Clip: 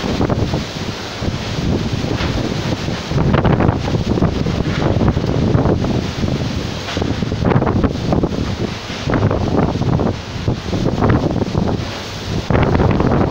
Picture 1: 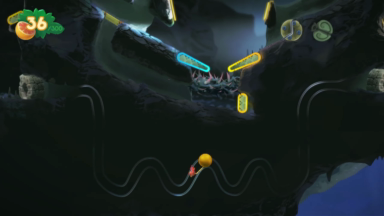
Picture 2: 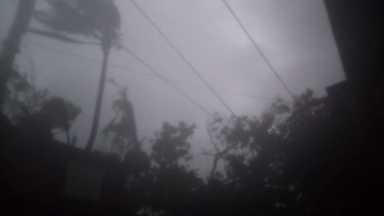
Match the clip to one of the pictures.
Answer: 2